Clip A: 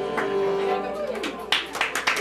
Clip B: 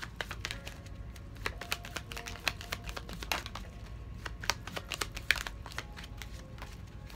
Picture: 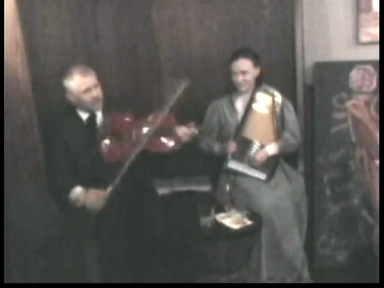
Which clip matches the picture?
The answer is A